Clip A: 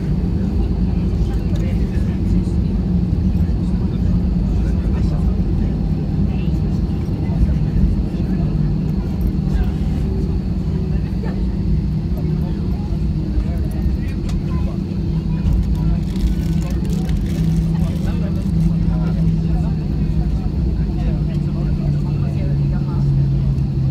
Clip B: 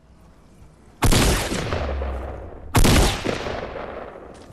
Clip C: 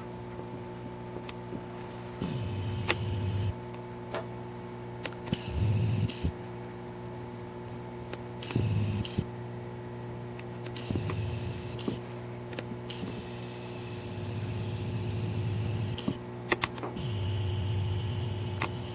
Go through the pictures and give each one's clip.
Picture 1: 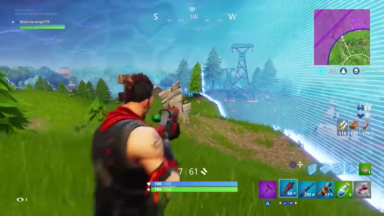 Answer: B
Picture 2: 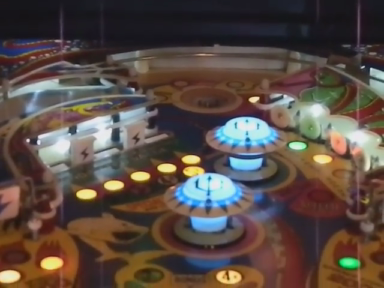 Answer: C